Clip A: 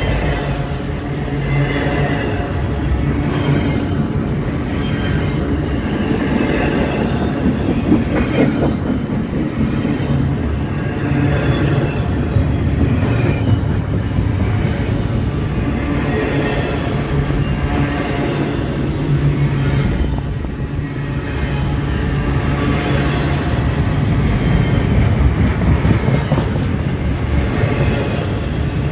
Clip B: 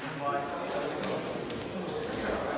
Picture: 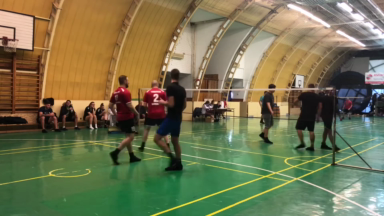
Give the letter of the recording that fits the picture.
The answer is B